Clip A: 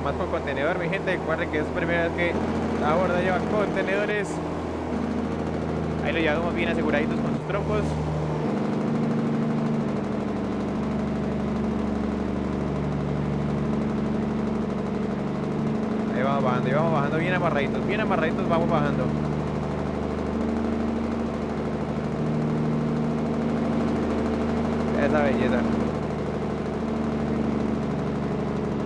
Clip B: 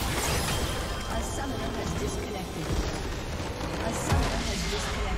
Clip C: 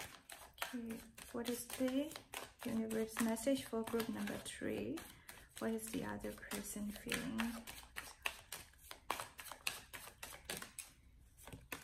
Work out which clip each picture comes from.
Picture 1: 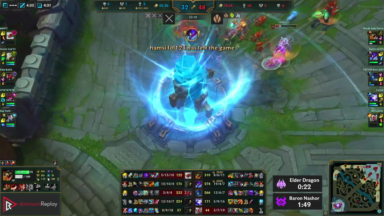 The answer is B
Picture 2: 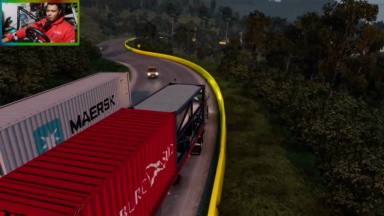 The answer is A